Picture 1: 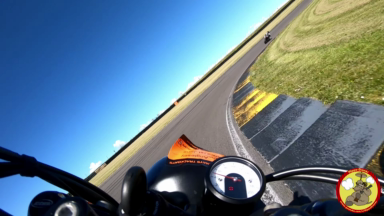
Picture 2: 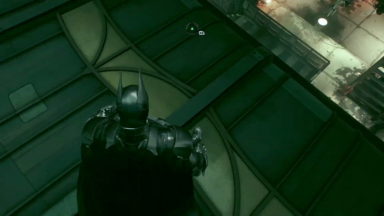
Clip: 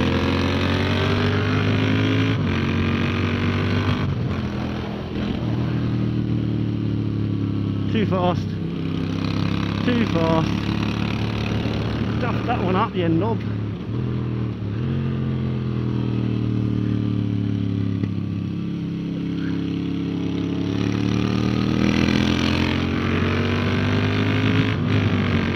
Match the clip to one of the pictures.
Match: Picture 1